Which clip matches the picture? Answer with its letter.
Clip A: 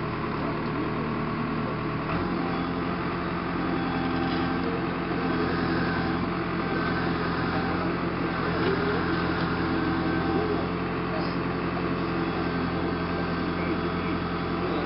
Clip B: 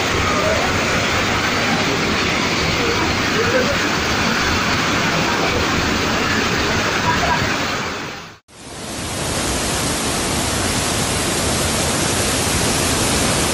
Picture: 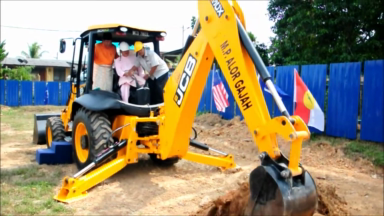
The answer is A